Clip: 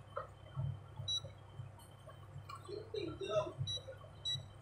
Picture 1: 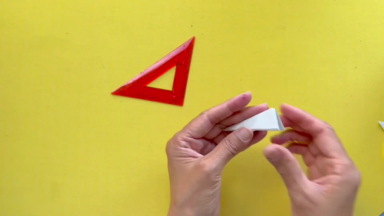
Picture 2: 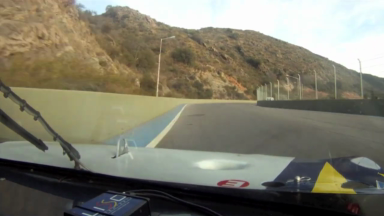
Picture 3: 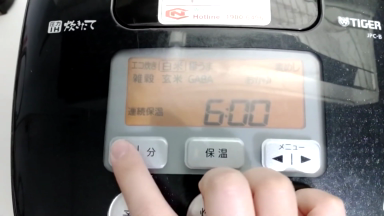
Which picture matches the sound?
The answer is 3